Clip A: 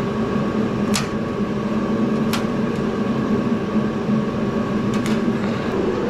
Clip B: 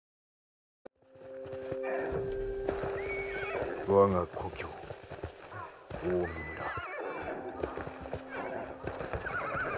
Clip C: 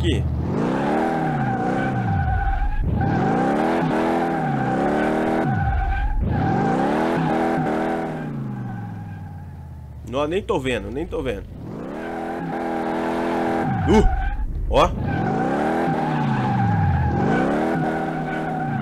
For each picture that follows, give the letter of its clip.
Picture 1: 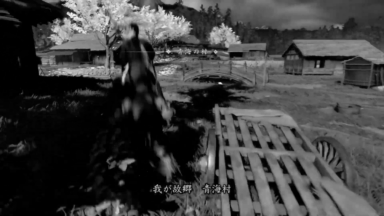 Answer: B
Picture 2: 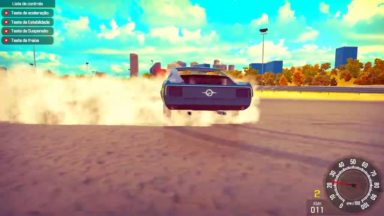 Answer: C